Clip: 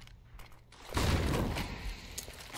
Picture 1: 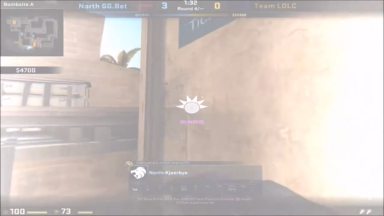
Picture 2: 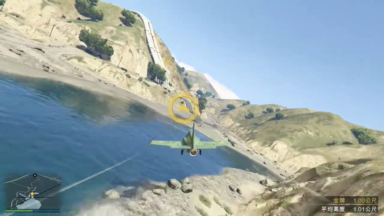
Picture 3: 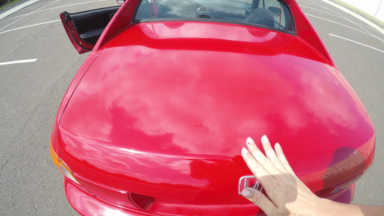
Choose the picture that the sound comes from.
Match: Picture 1